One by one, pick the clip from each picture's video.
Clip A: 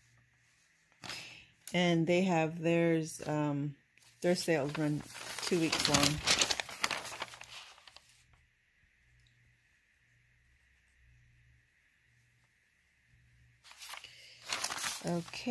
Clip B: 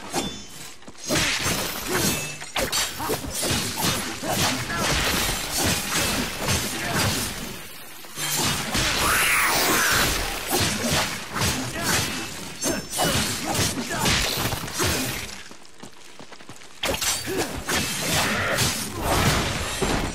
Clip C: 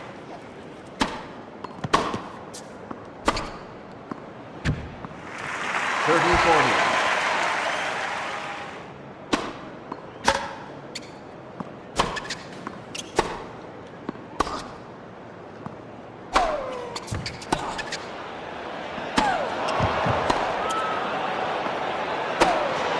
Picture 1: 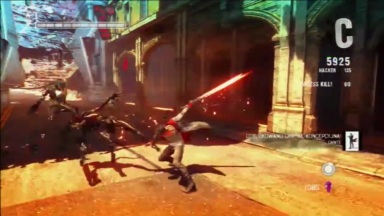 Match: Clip B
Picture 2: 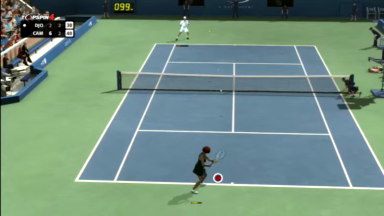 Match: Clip C